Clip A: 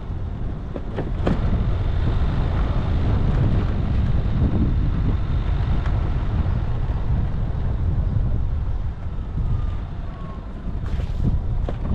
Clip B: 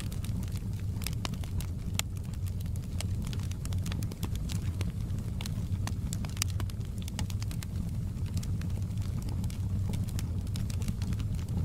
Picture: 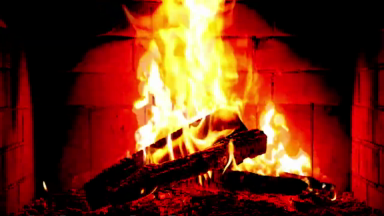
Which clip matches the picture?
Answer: B